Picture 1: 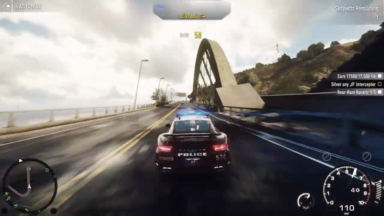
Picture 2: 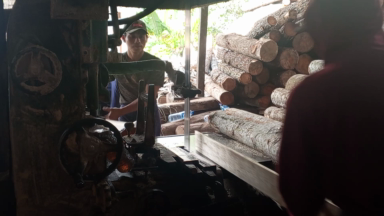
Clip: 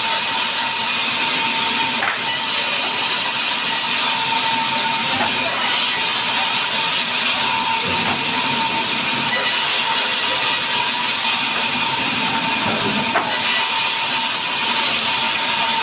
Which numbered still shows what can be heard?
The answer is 2